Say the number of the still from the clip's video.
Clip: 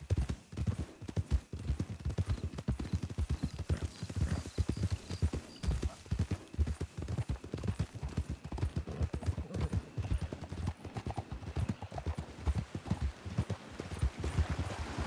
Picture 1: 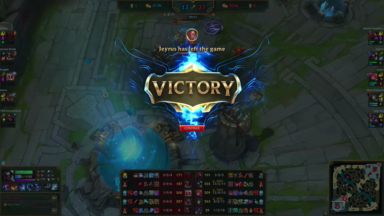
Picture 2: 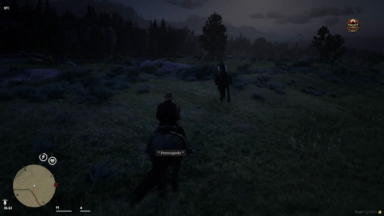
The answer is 2